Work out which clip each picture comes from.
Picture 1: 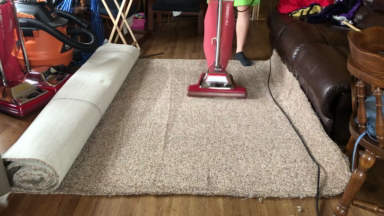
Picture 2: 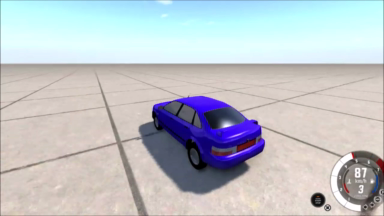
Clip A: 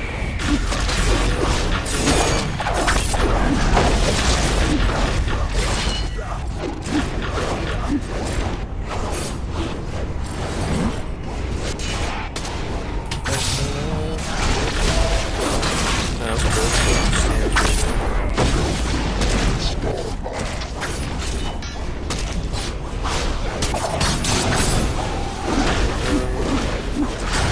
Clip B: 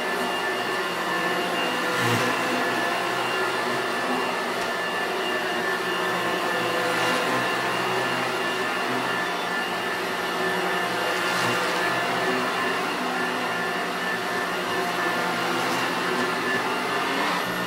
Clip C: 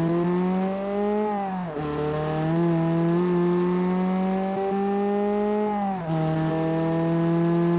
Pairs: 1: B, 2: C